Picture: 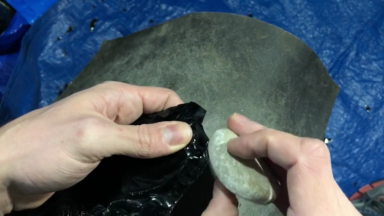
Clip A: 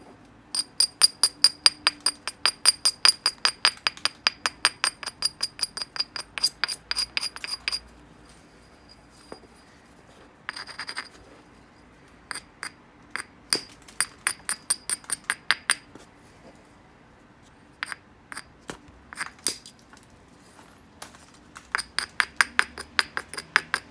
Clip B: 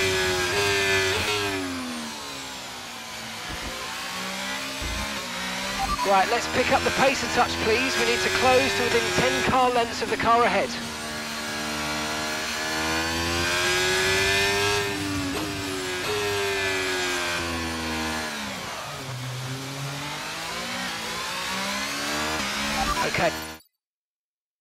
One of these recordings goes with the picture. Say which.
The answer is A